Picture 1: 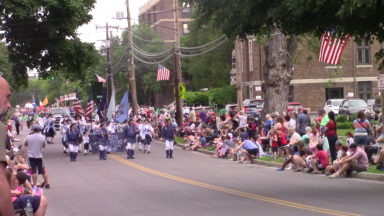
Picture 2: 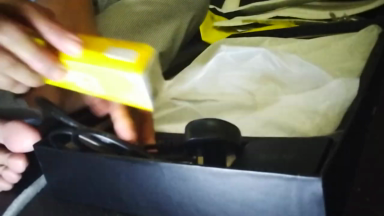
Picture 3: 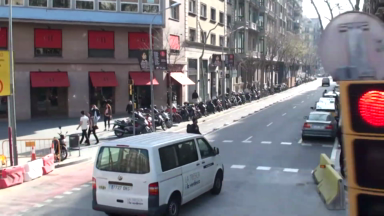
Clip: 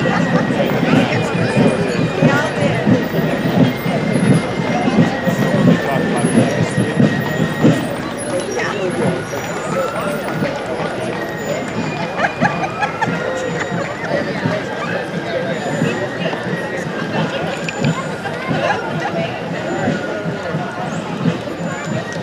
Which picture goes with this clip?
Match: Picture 1